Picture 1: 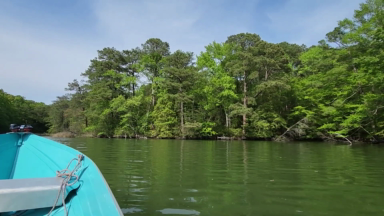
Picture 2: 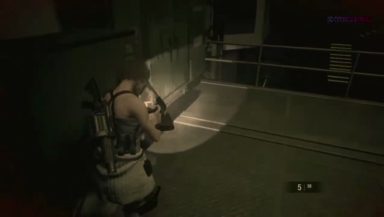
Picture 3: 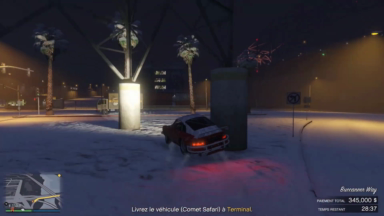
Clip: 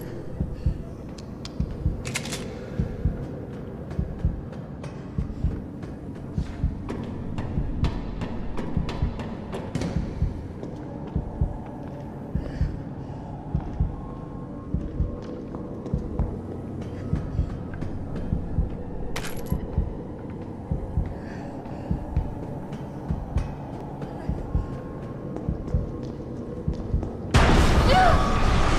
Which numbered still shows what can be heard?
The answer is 2